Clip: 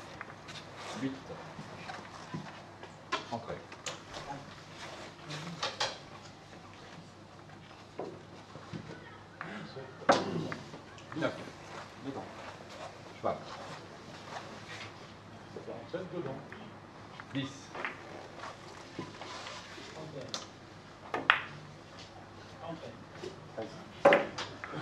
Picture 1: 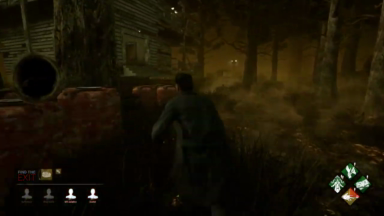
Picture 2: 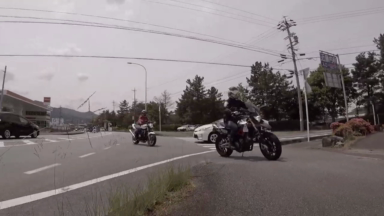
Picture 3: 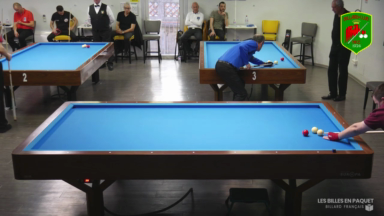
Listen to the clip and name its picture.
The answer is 3